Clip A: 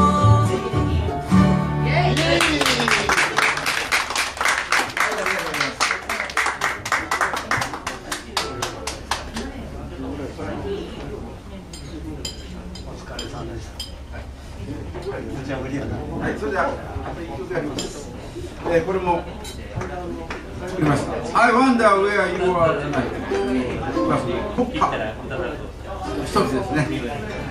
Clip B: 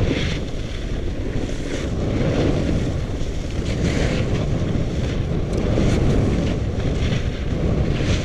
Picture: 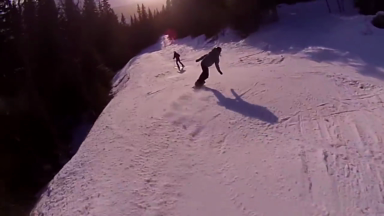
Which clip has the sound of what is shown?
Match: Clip B